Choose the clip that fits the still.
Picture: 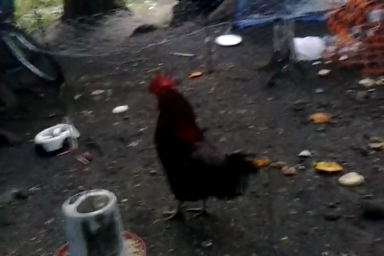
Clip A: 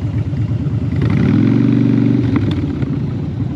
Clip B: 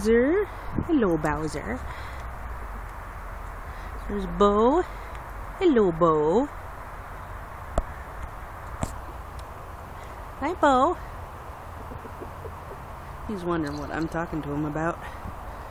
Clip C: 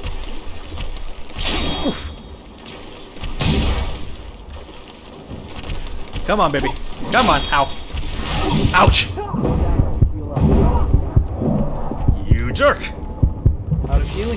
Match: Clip B